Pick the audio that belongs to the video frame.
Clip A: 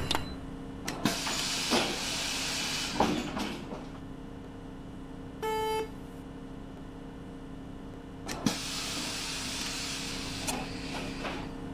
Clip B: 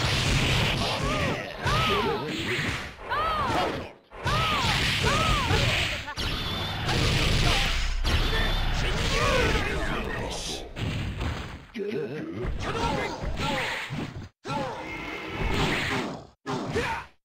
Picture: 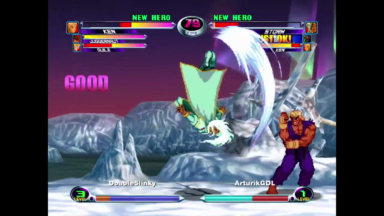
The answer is B